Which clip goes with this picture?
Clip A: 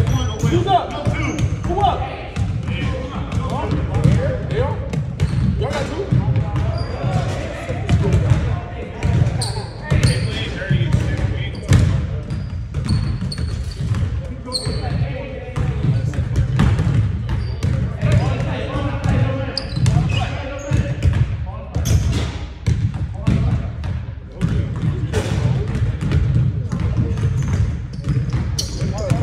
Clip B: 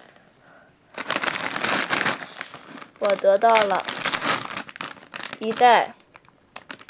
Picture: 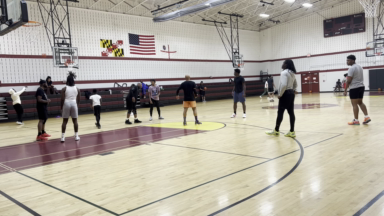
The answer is A